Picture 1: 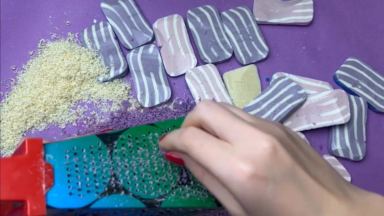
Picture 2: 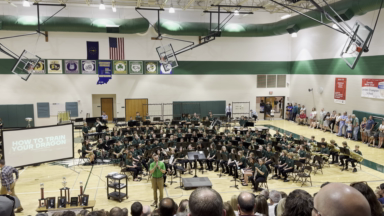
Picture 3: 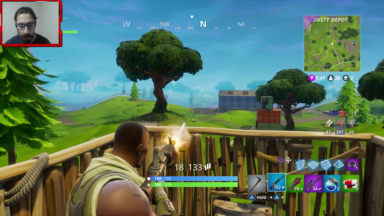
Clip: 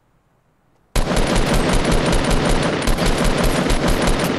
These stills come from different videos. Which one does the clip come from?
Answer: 3